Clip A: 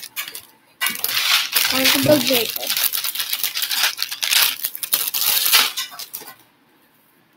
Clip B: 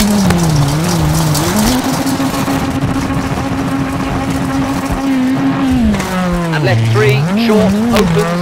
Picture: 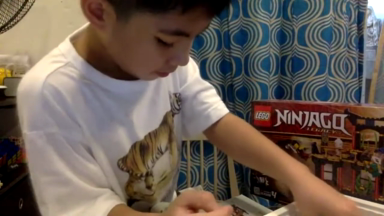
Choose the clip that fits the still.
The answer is A